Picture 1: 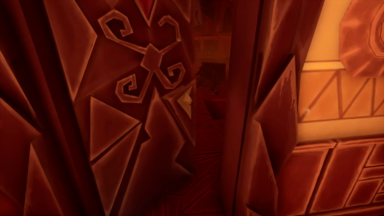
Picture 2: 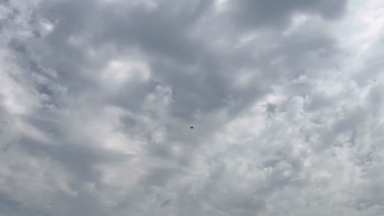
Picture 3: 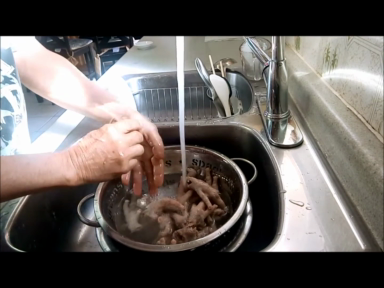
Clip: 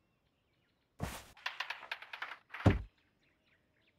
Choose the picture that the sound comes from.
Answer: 1